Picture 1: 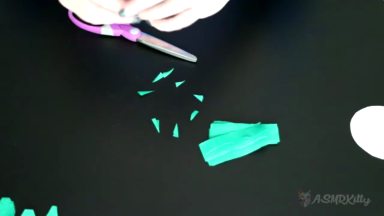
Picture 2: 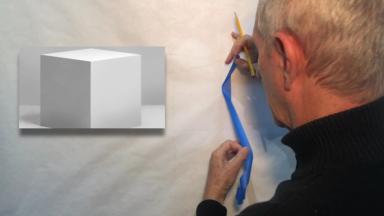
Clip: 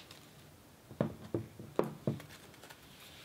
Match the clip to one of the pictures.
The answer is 1